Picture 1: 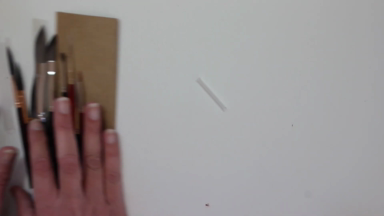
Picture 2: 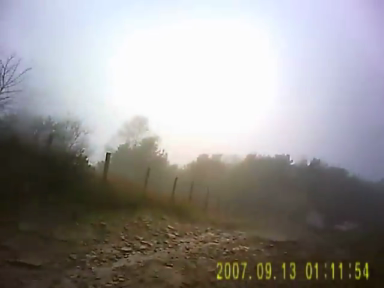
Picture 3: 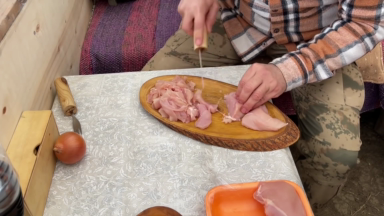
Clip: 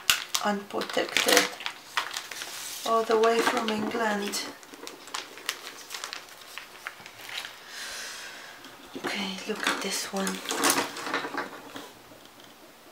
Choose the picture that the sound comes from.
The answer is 1